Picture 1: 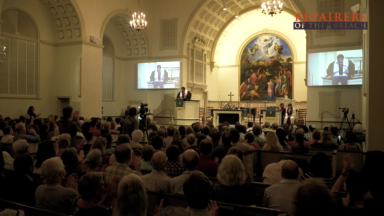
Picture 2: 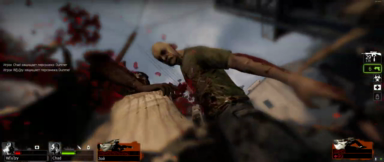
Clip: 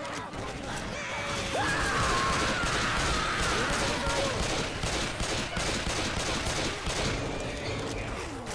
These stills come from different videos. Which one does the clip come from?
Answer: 2